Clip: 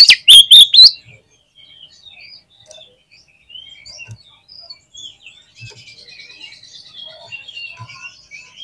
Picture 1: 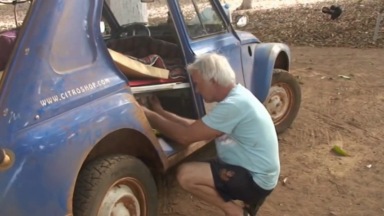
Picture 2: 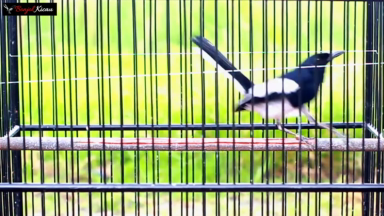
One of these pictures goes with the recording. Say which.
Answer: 2